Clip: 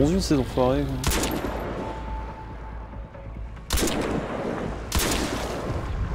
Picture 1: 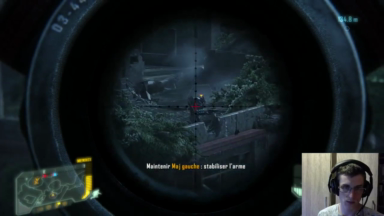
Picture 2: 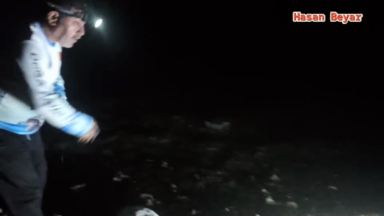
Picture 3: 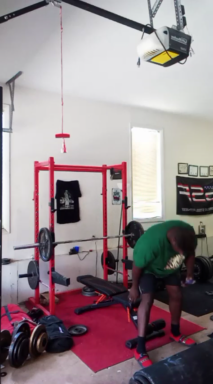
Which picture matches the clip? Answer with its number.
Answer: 1